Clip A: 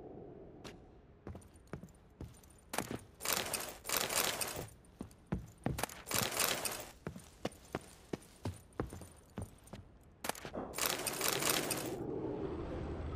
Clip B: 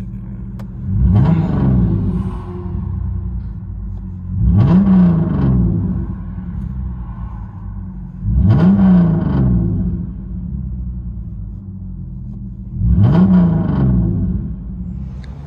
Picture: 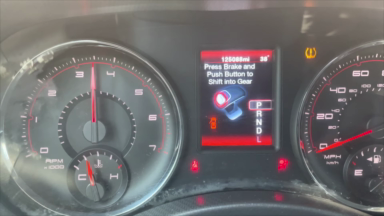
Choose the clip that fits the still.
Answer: B